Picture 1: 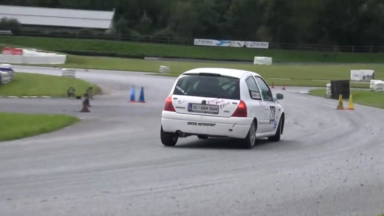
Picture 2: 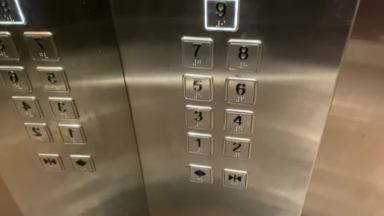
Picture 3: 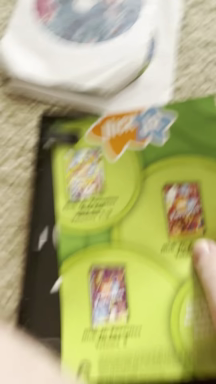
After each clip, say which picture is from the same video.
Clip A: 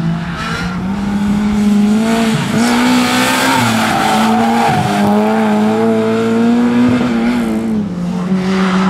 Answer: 1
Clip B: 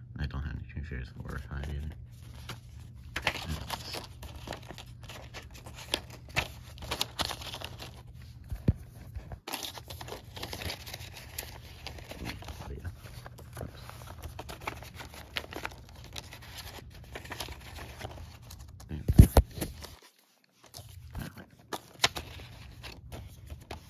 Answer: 3